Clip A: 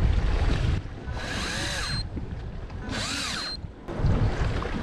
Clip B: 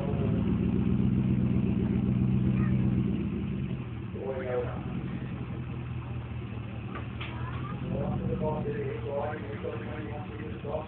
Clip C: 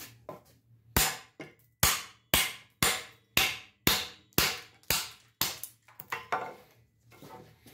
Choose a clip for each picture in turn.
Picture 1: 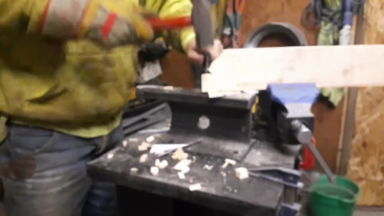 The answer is C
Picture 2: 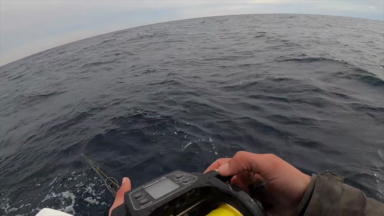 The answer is A